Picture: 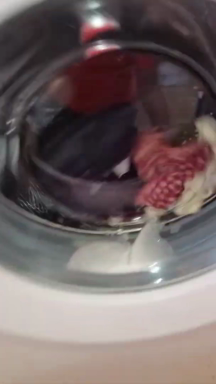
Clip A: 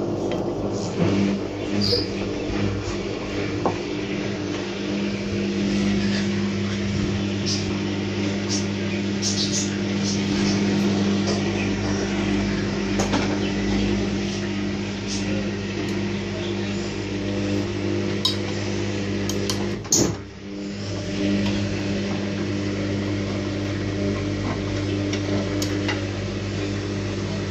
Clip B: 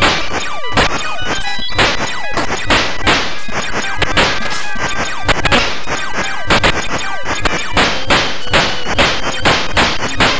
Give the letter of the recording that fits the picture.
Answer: A